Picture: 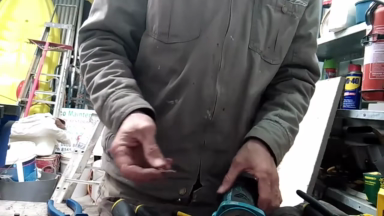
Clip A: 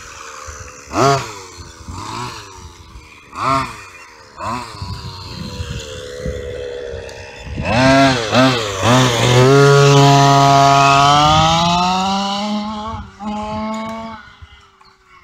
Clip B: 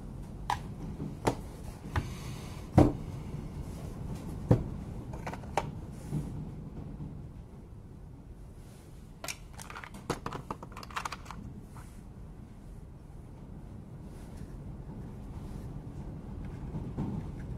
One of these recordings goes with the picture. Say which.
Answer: B